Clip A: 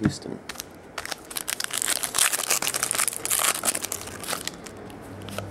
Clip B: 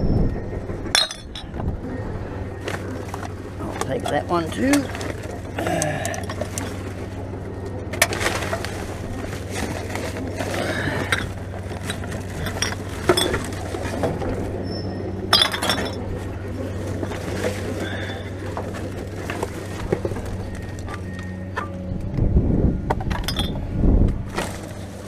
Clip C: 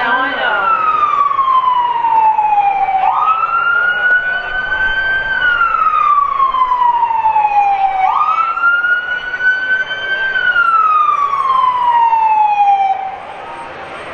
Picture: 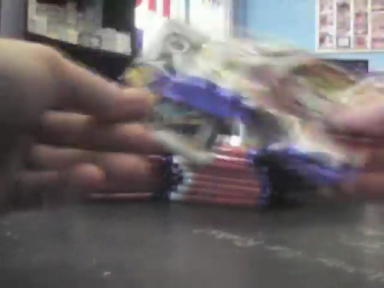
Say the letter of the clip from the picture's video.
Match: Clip A